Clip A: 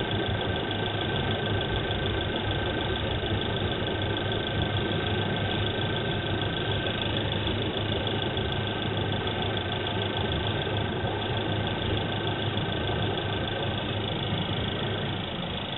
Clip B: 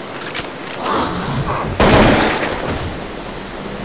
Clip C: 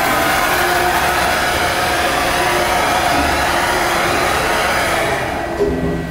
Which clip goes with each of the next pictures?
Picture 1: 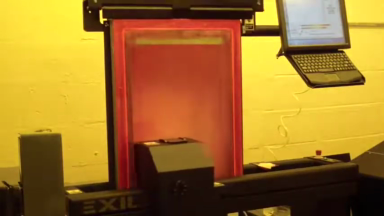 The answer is C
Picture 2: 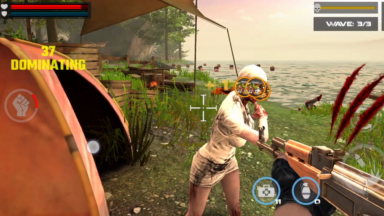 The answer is B